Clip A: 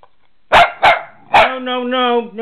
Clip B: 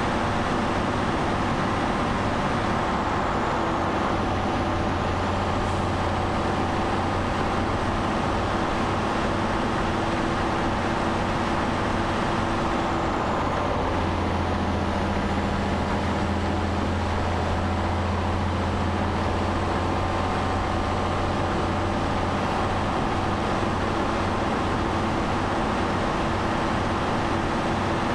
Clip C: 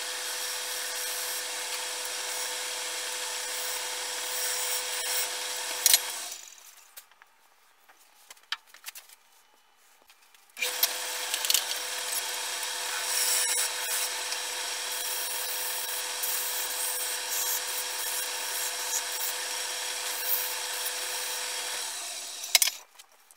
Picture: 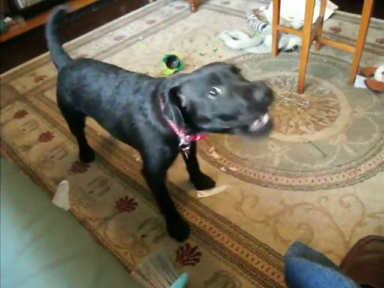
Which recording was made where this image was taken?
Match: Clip A